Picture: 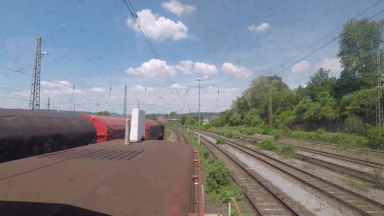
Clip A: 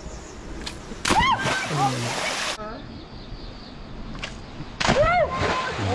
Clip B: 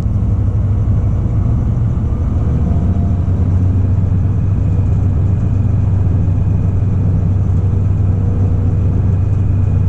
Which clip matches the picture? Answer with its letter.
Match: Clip B